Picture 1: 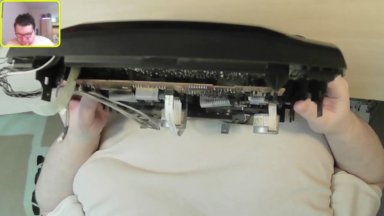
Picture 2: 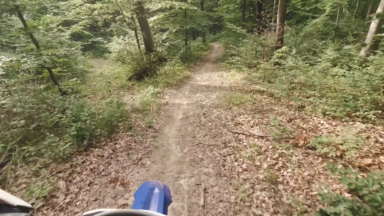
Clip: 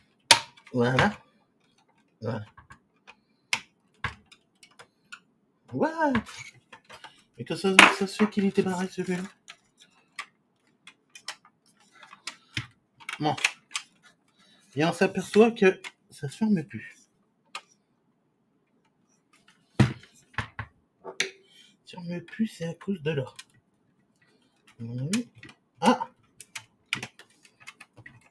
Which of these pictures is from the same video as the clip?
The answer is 1